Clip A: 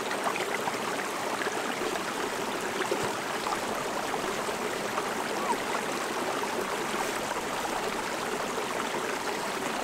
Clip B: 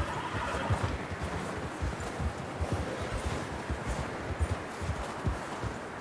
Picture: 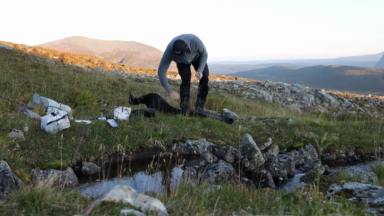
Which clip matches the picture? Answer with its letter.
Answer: A